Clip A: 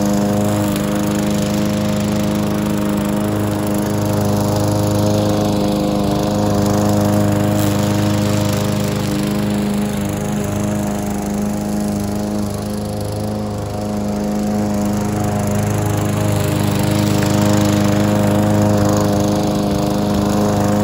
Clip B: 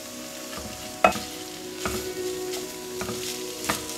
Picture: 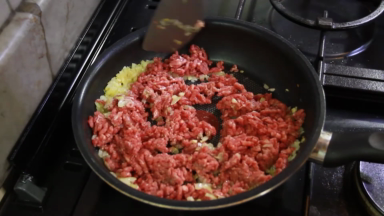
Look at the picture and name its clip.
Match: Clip B